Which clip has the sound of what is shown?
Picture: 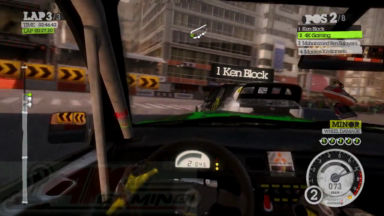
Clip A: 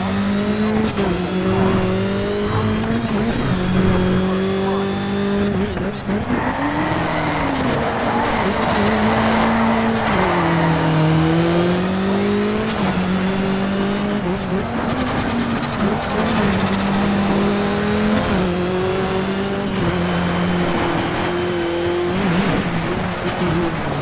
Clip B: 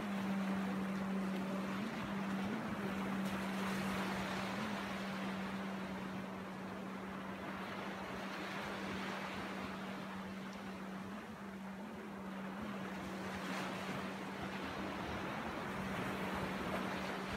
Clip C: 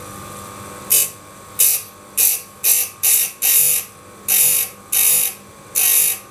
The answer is A